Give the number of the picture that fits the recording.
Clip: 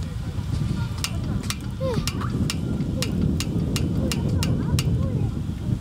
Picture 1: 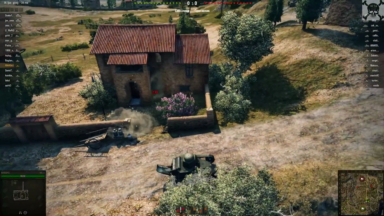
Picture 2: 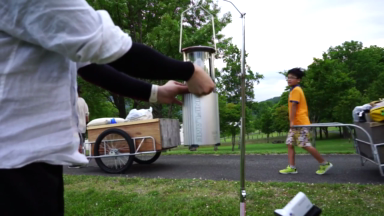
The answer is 2